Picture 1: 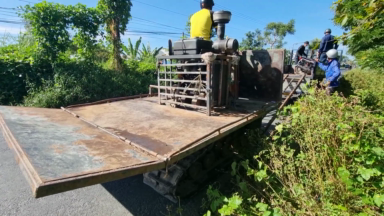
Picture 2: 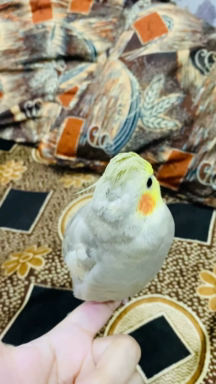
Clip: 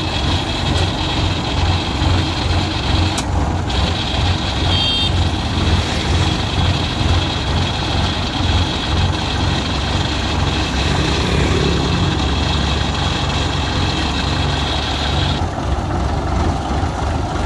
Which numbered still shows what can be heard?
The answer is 1